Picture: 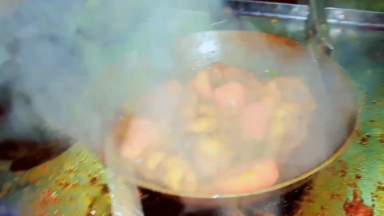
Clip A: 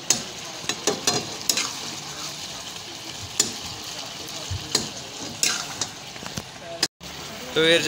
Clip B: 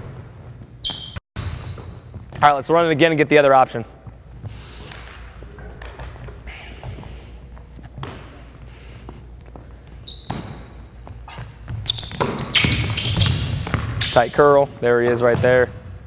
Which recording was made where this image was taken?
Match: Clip A